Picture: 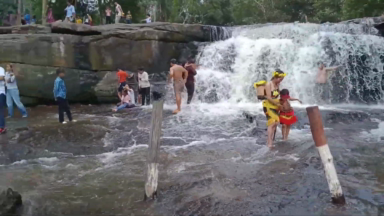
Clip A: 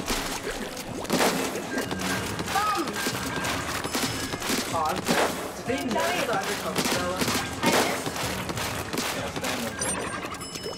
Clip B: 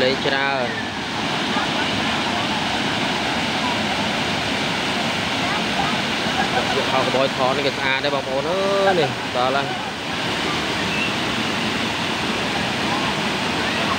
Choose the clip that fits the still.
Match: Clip B